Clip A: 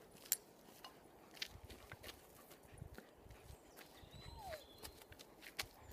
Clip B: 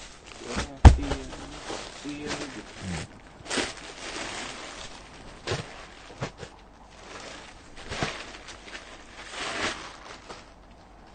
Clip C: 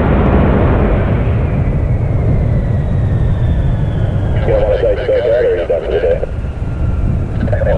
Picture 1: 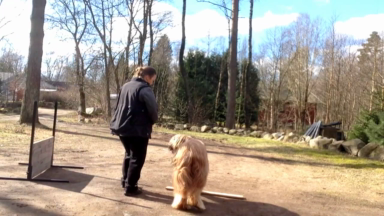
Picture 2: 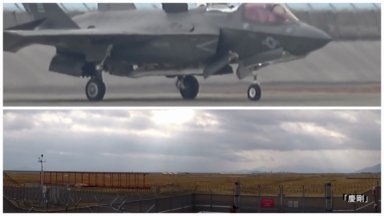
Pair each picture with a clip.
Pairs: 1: A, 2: C